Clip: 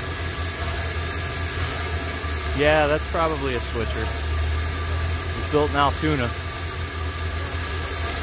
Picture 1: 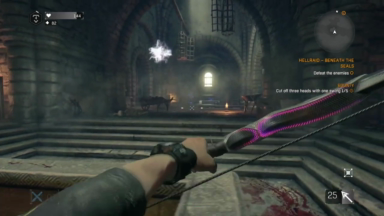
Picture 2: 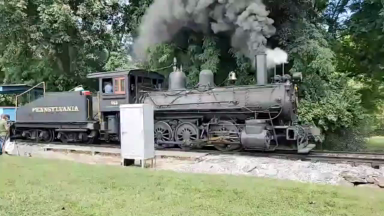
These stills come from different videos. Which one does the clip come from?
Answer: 2